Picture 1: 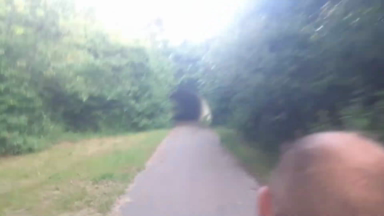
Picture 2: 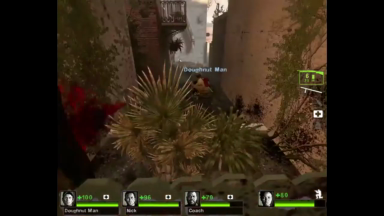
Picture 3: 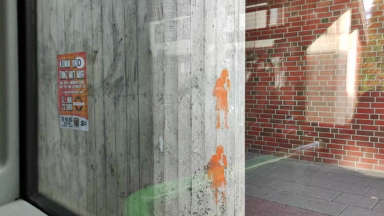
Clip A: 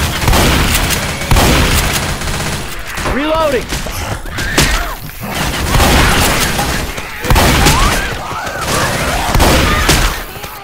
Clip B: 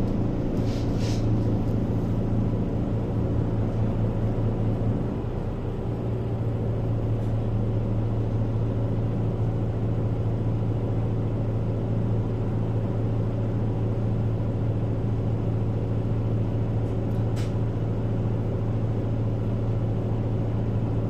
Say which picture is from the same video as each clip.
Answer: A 2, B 3